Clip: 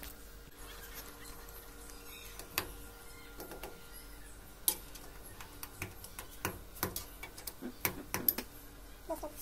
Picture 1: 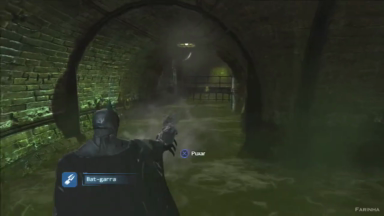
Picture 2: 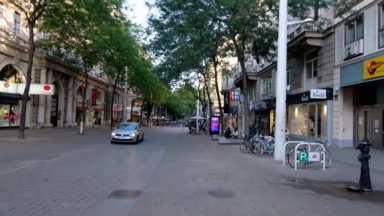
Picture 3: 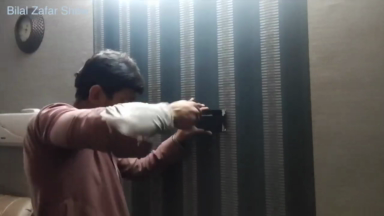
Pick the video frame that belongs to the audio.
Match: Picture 3